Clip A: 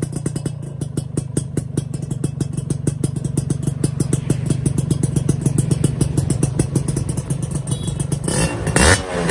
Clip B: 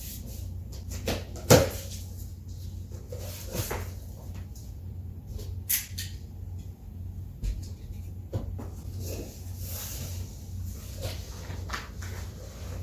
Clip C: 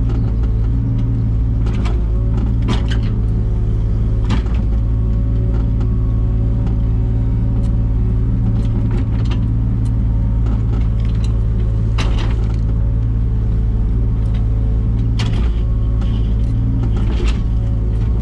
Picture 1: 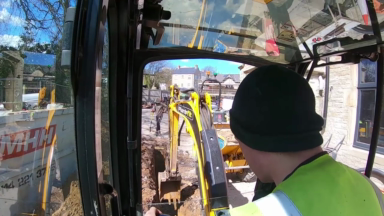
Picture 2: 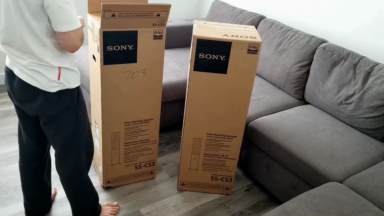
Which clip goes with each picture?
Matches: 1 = C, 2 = B